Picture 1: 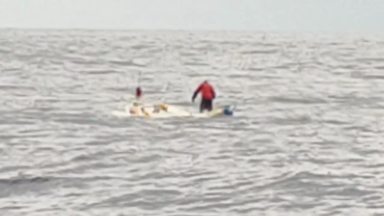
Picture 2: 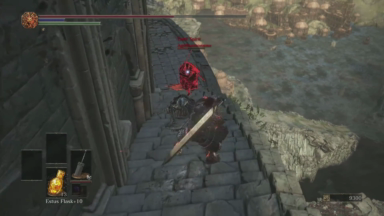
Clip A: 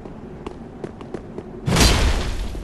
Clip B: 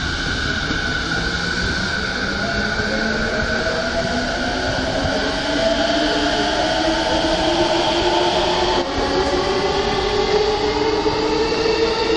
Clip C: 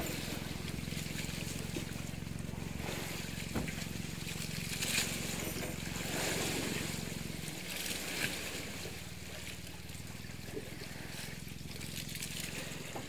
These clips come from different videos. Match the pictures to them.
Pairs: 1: C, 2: A